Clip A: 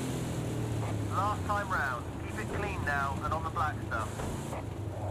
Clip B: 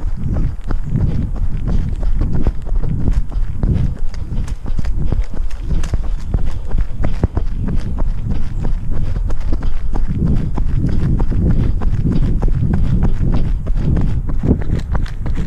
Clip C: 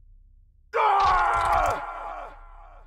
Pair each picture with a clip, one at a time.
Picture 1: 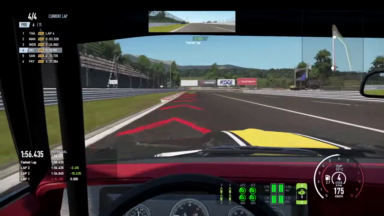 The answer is A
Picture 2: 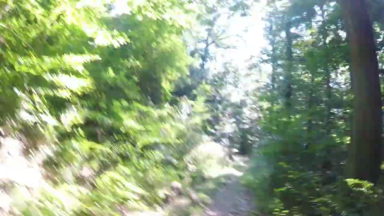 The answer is B